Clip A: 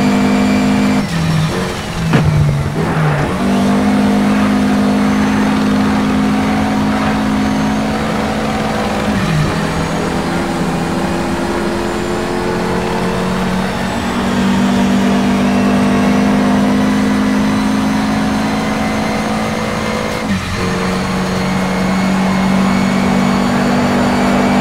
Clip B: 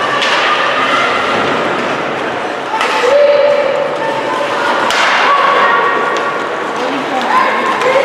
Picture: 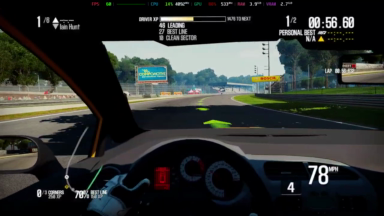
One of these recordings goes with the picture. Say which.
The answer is A